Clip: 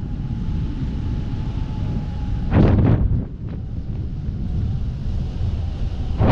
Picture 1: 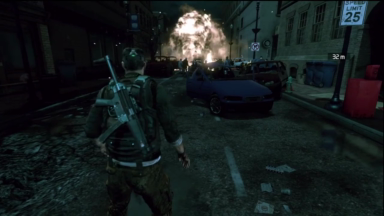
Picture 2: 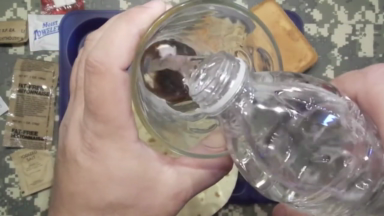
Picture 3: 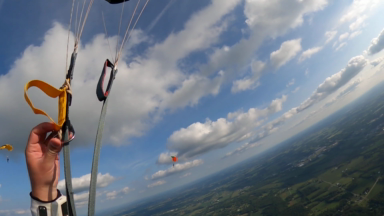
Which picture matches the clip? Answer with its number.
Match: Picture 3